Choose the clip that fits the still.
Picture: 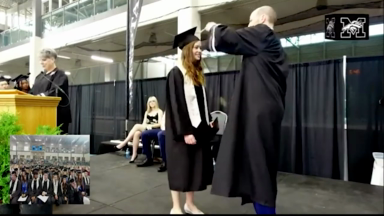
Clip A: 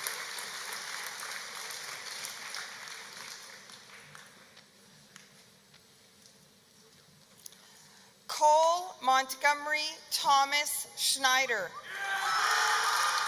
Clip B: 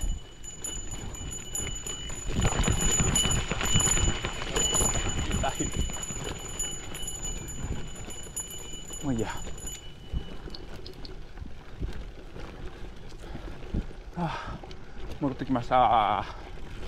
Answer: A